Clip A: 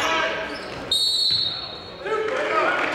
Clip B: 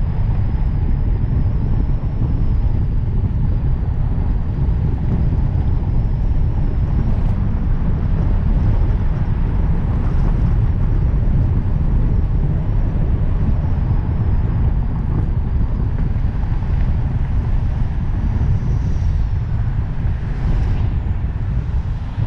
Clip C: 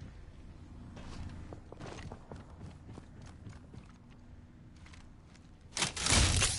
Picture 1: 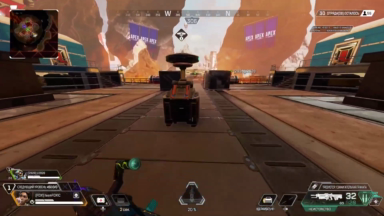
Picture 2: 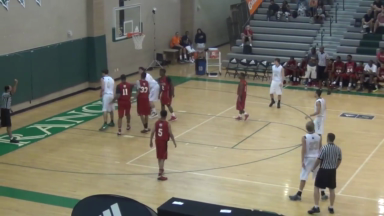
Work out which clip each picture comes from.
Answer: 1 C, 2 A